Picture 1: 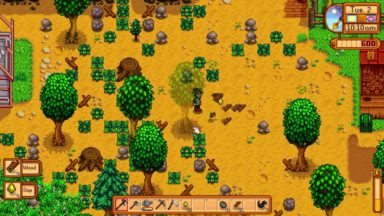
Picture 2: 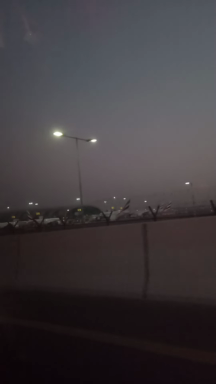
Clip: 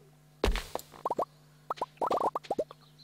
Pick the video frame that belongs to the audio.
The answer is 1